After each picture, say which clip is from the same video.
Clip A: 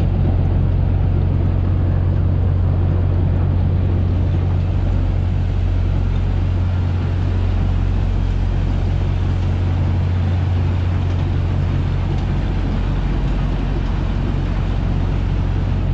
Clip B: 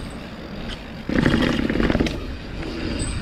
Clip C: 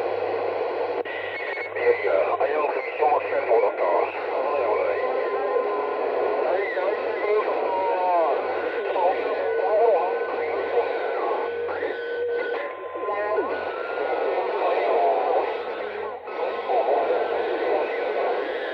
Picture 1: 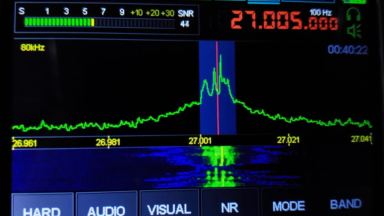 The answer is C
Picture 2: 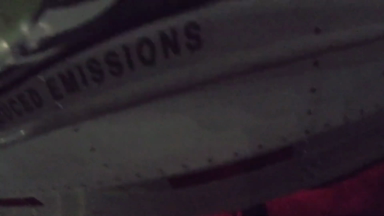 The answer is A